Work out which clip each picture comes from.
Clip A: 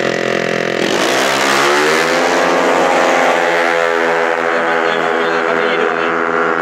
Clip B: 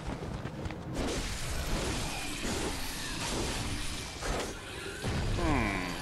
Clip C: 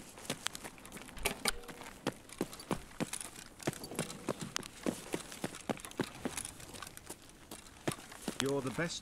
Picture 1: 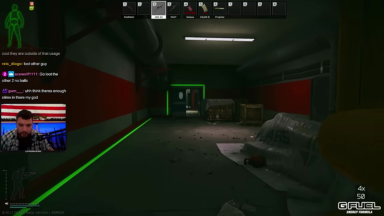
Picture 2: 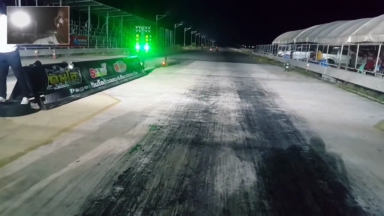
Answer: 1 C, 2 A